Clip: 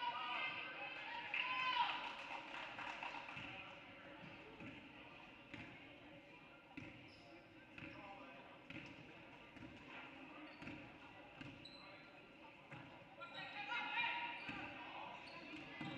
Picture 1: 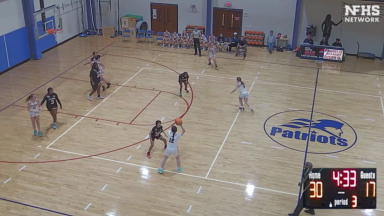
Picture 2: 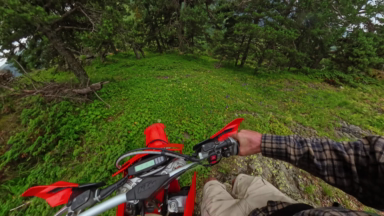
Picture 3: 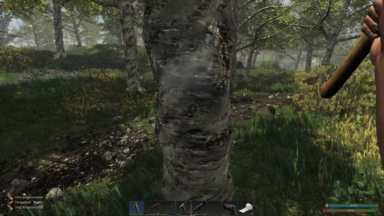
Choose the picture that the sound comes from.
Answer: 1